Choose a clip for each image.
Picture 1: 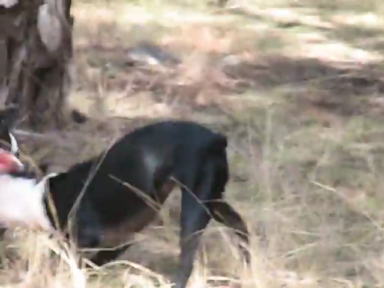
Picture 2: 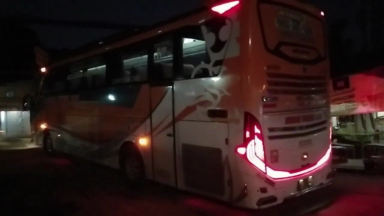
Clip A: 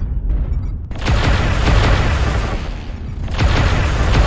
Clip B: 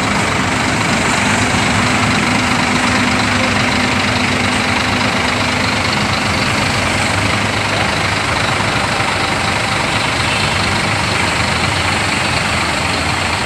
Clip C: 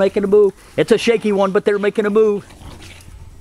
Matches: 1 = C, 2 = B